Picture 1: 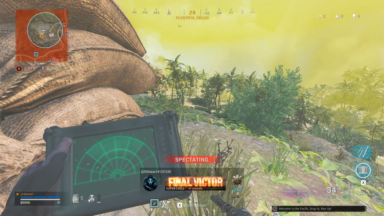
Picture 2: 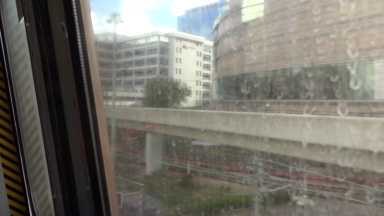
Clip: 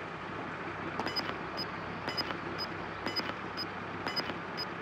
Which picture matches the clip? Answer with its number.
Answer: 1